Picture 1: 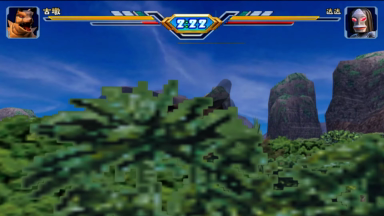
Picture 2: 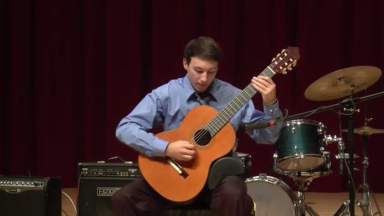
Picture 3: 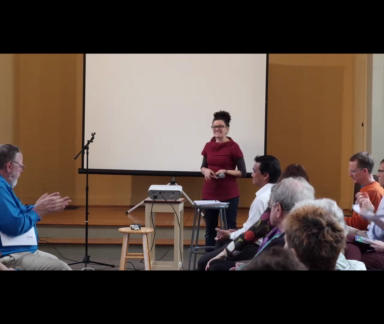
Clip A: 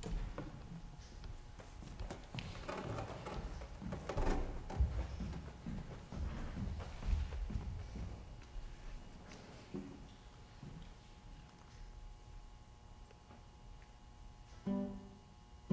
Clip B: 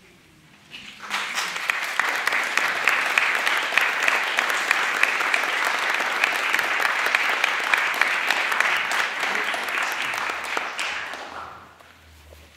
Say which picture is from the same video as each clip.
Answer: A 2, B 3